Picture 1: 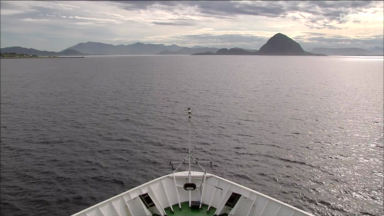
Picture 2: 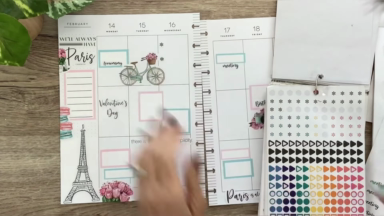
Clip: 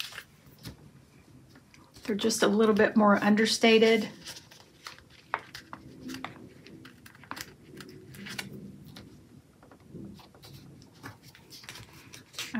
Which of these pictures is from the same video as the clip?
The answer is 2